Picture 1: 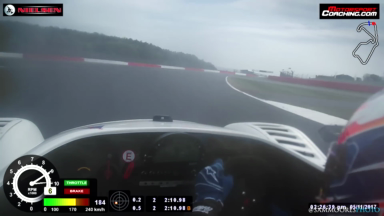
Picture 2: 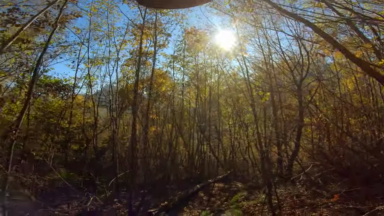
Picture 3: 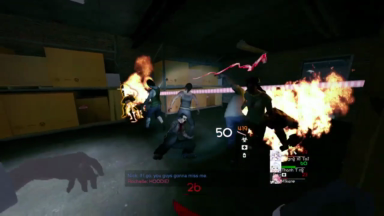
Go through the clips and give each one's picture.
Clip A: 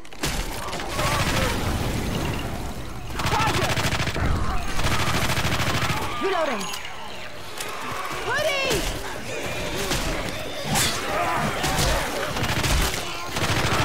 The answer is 3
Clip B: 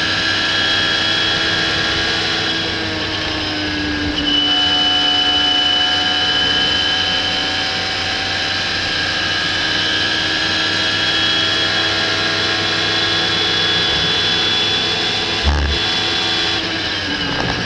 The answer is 1